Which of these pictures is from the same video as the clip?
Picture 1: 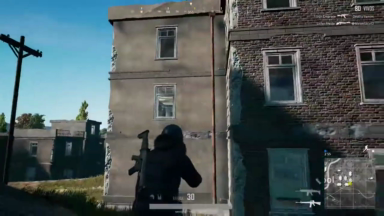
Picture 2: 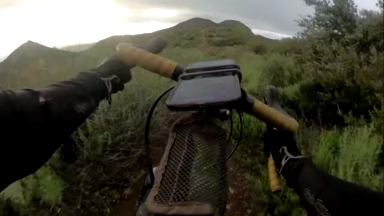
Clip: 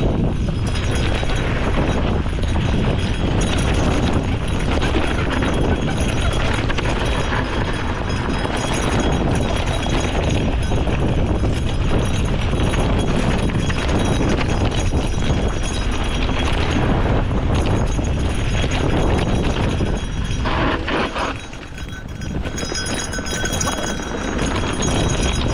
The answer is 2